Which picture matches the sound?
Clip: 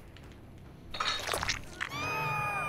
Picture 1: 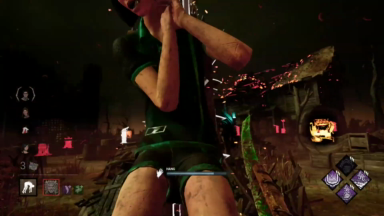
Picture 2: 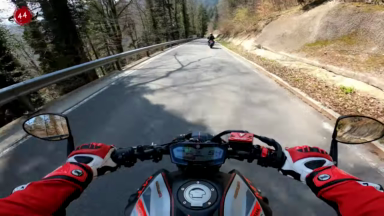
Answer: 1